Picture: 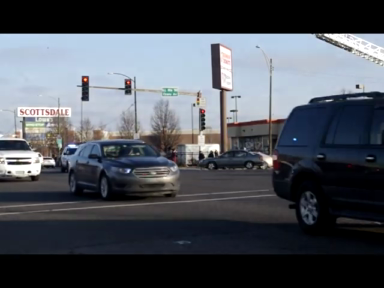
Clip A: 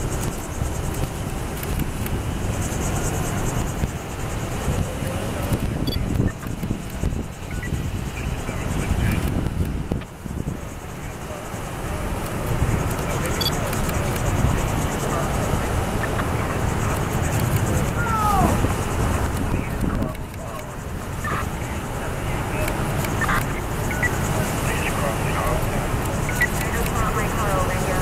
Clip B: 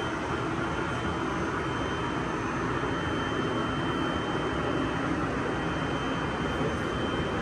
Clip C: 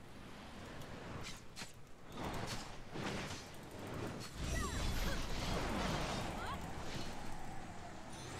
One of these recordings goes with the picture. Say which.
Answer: A